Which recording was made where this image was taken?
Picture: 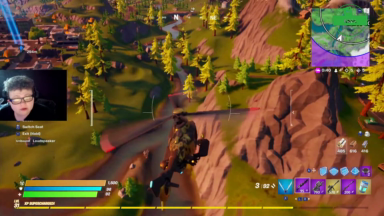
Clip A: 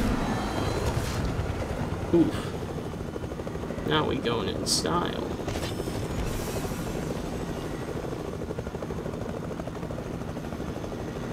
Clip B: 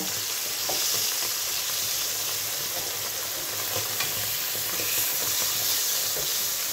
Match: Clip A